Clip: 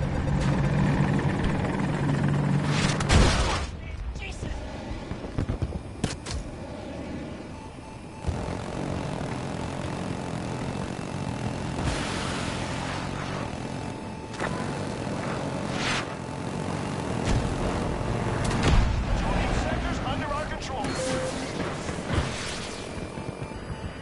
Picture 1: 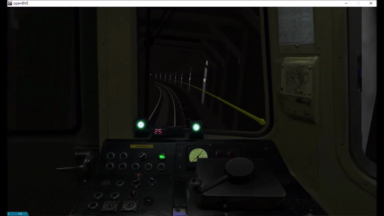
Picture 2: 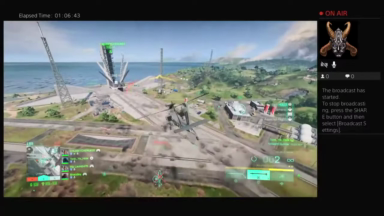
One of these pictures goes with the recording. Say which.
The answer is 2